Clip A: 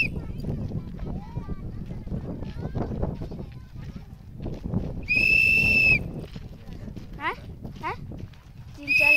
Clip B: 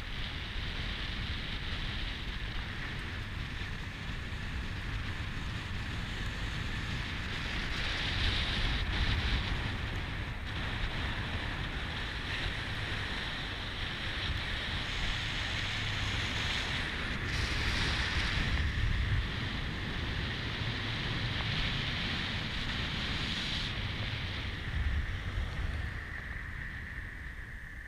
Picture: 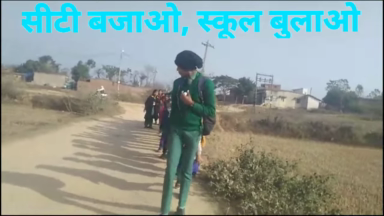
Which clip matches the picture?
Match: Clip A